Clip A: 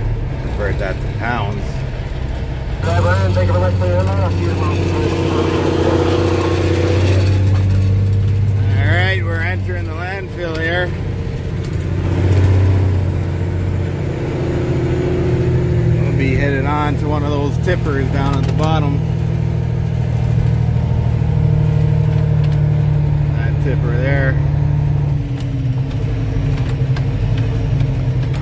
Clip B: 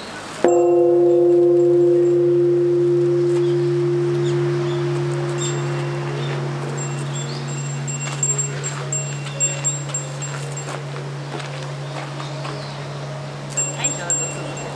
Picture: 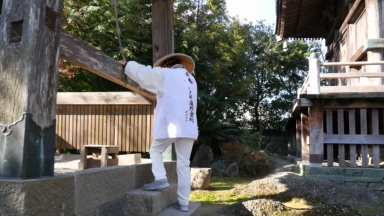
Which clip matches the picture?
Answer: B